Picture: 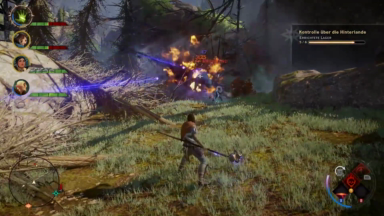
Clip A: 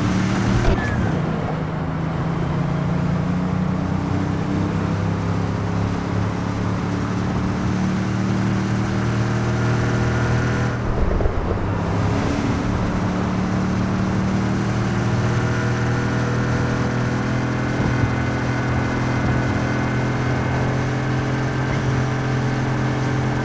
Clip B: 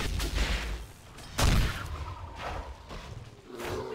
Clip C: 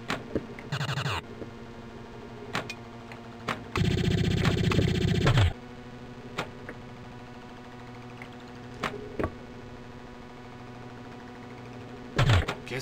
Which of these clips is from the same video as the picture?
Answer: B